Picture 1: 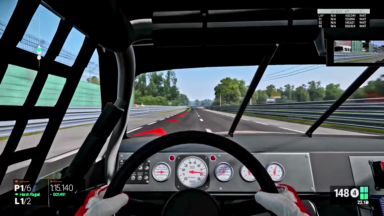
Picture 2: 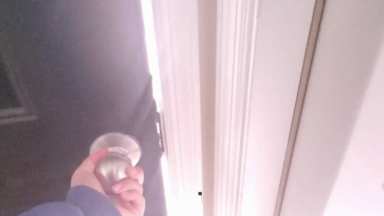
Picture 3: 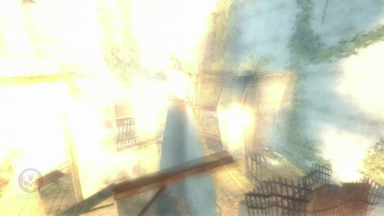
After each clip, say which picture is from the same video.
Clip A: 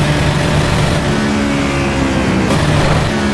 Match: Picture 1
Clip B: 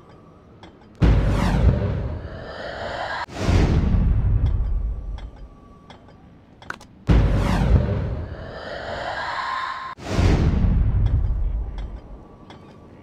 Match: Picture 3